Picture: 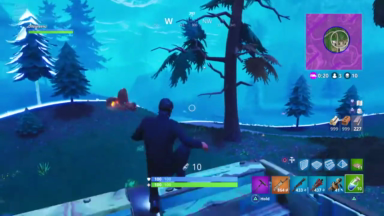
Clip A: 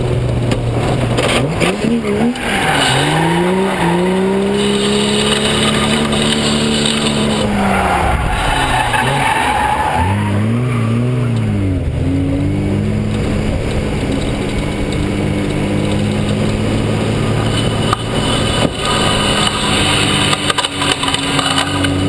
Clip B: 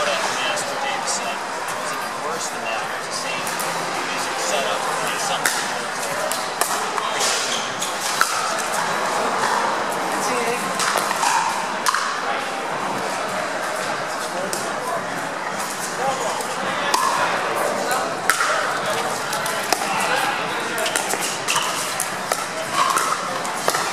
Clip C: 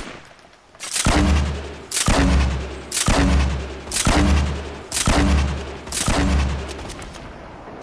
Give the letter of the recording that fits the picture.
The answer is C